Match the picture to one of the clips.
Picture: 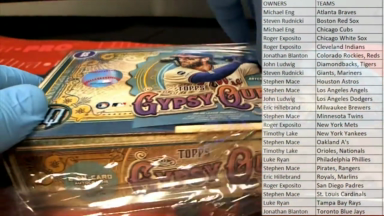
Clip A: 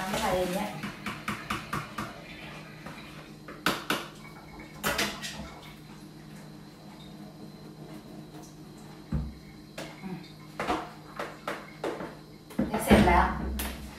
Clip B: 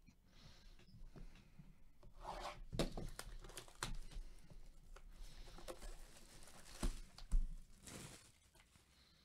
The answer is B